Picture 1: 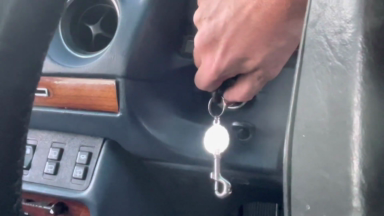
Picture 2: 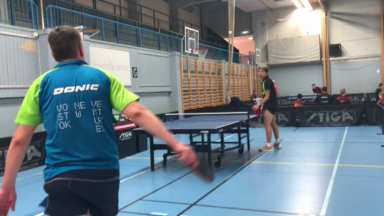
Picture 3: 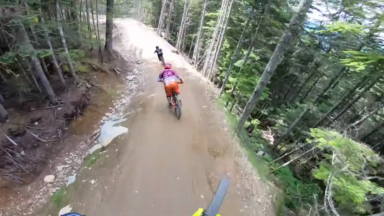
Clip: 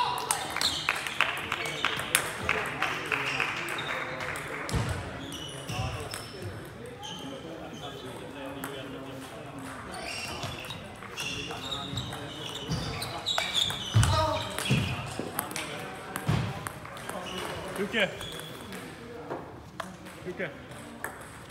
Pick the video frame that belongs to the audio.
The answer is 2